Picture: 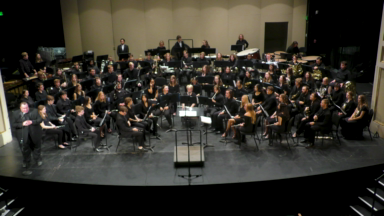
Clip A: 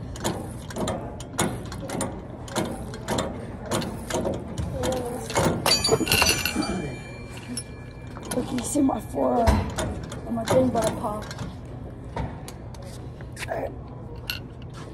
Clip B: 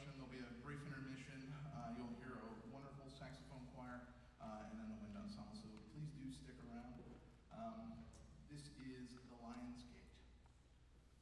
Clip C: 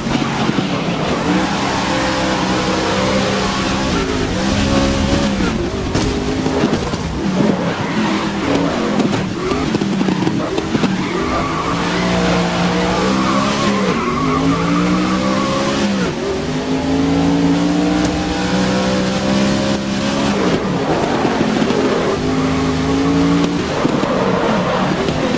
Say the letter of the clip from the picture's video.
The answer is B